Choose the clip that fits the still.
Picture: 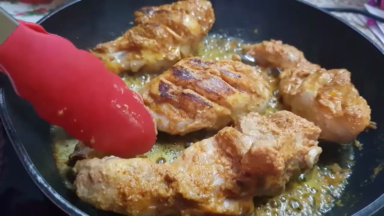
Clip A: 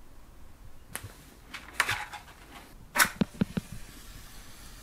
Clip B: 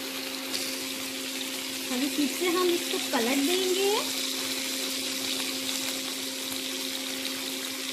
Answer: B